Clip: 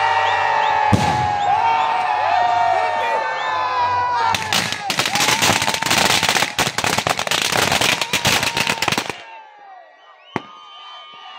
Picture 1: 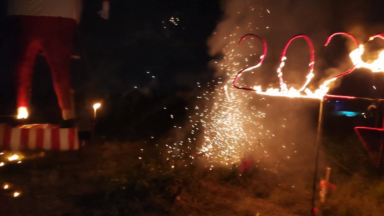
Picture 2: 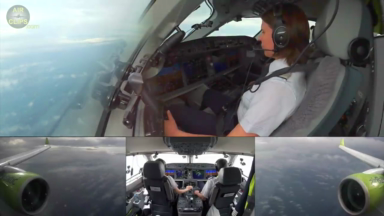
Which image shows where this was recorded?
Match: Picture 1